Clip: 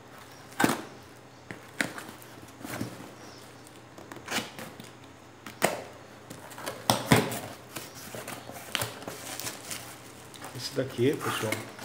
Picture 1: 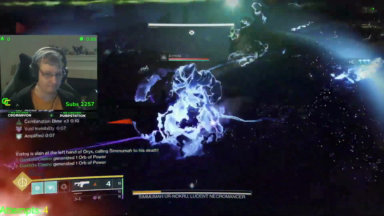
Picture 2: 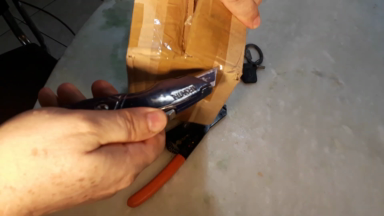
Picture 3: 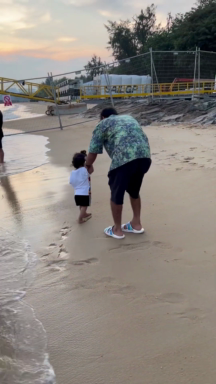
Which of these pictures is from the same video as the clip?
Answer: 2